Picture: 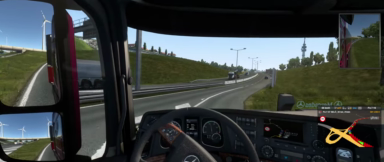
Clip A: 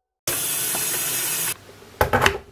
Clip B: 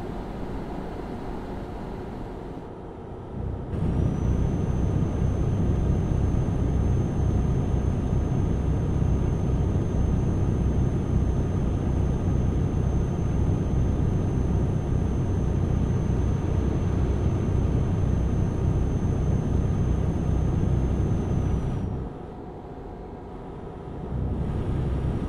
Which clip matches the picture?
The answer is B